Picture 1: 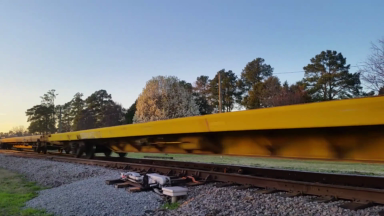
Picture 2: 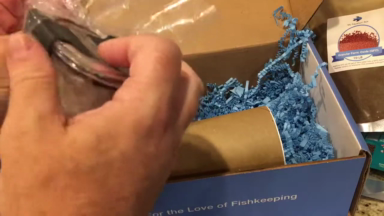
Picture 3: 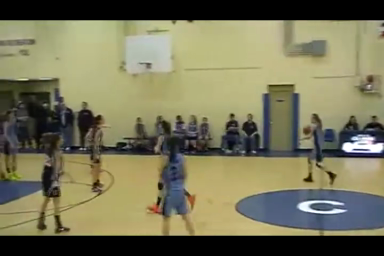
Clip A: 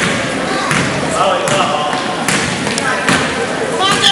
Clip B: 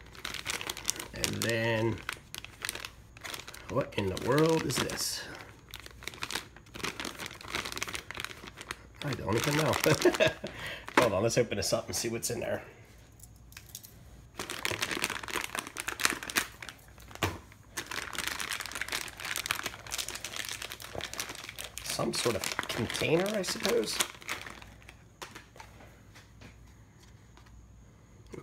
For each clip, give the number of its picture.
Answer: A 3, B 2